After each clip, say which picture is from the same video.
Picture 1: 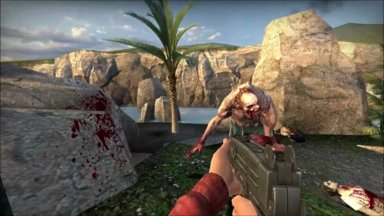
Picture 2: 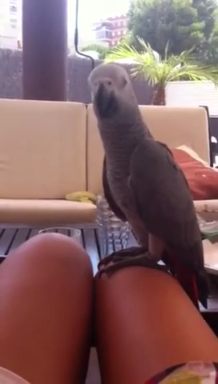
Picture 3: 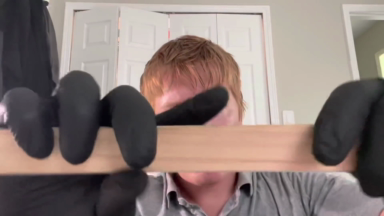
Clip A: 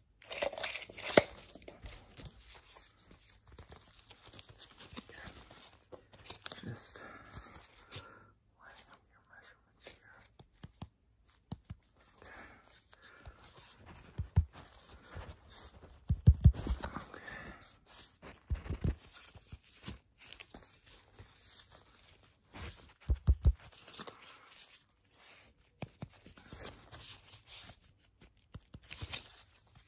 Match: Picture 3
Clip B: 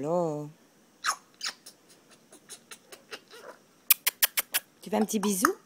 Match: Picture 2